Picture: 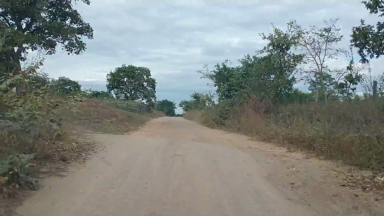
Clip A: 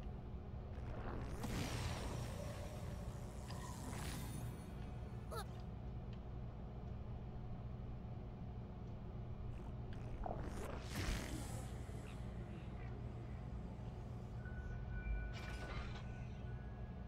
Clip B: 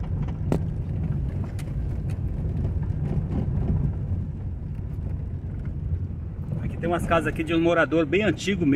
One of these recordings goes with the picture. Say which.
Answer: B